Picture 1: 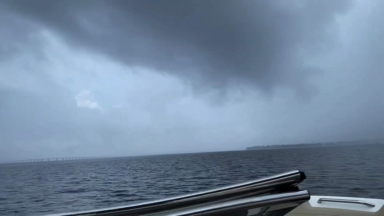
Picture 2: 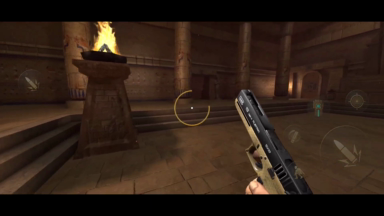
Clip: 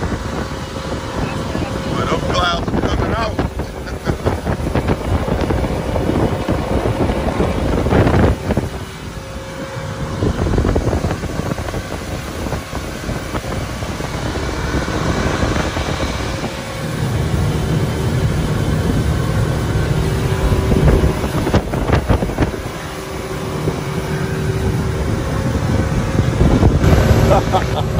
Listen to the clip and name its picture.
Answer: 1